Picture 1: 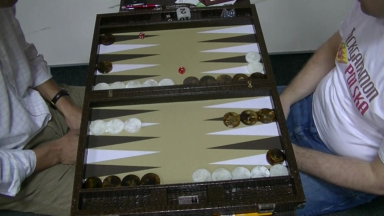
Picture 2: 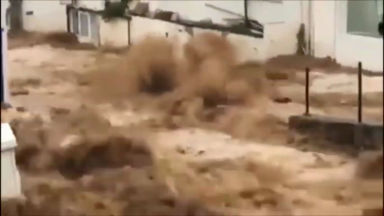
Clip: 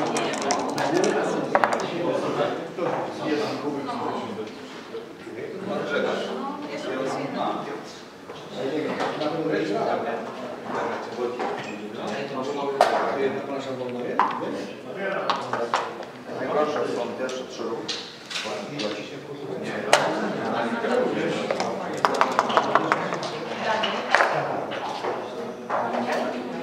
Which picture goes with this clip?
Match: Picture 1